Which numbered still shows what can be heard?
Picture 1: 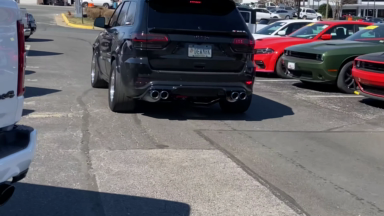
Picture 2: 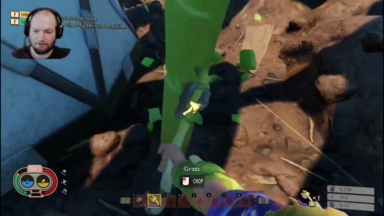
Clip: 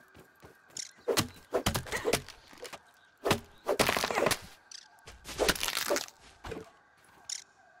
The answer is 2